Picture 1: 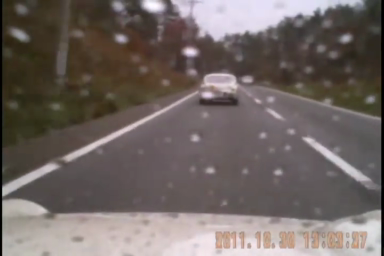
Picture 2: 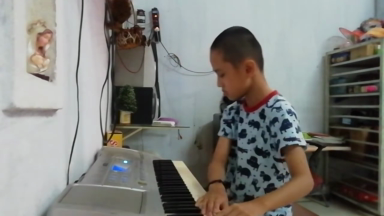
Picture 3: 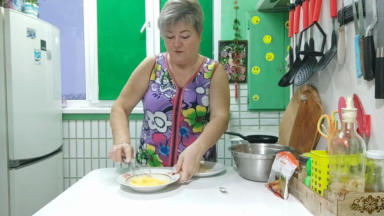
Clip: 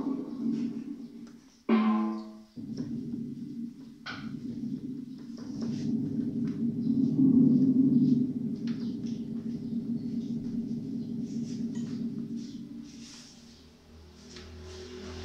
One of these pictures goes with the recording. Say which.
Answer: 2